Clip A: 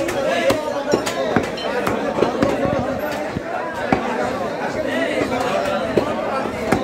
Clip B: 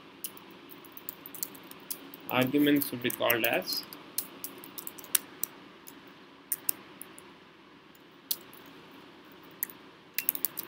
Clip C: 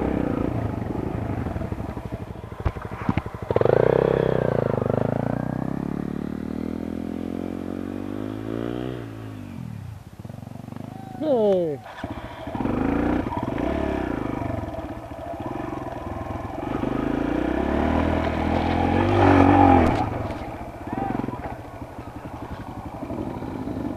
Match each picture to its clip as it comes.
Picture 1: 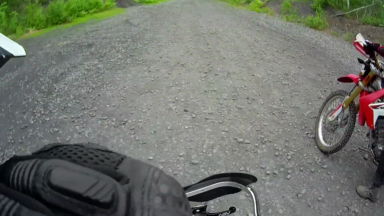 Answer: C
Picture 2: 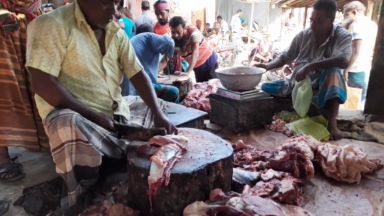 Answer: A